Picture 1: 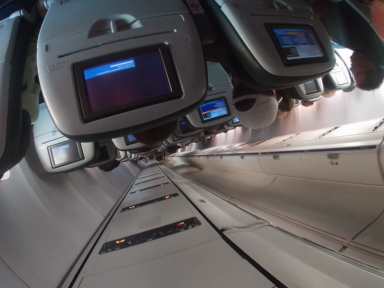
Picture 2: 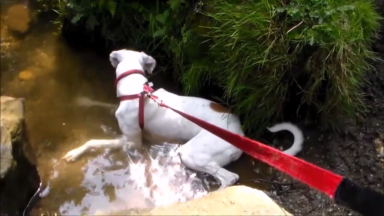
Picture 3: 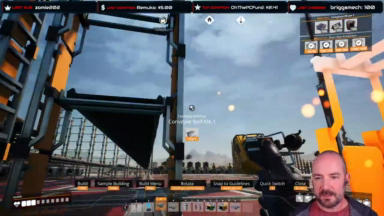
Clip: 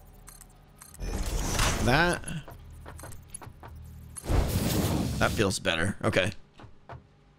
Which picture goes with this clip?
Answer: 3